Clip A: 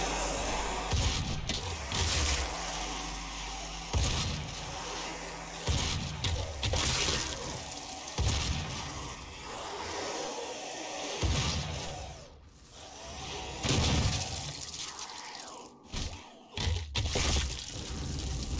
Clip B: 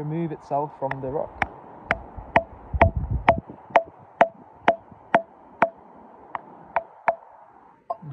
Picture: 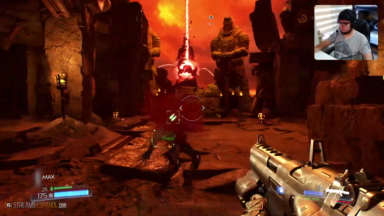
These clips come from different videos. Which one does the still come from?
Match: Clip A